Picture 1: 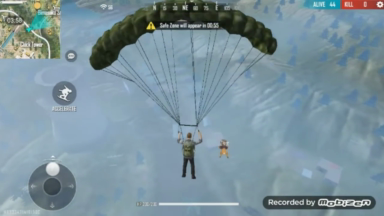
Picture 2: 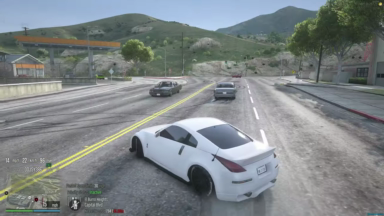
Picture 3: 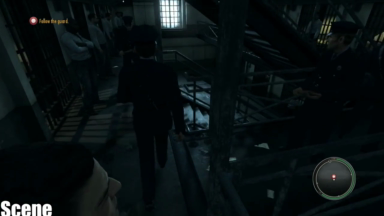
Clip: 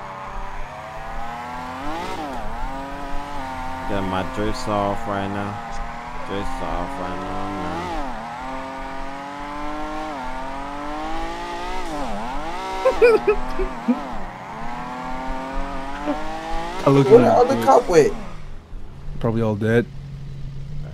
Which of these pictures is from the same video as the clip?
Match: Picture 2